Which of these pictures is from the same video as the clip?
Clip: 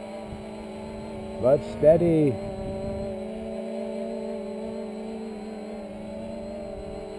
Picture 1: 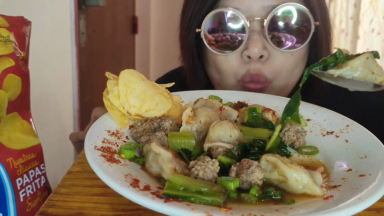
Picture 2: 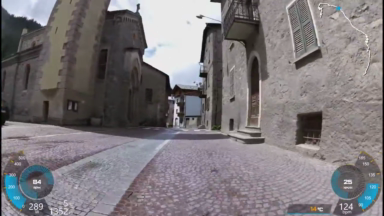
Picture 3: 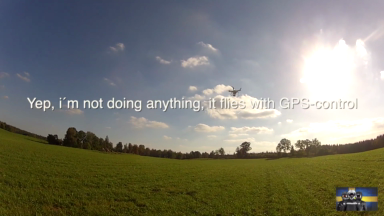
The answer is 3